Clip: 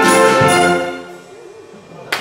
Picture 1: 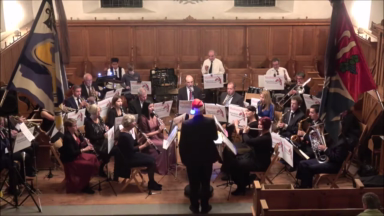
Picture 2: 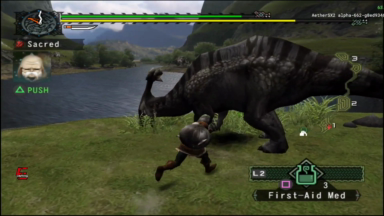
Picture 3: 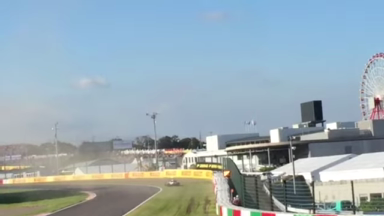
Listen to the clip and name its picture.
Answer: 1